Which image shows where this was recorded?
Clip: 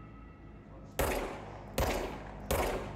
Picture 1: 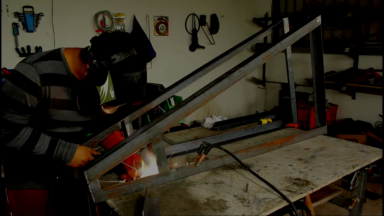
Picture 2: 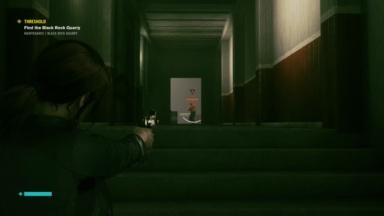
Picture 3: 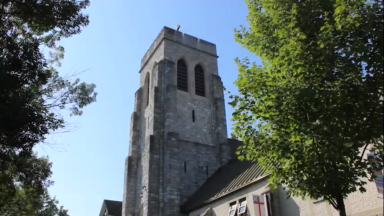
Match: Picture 2